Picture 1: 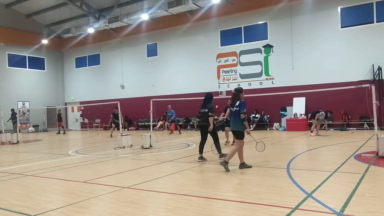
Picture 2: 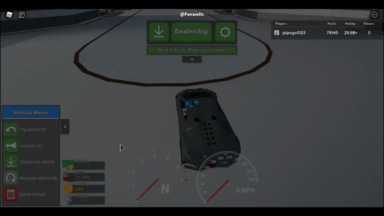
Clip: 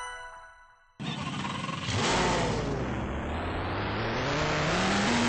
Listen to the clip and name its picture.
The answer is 2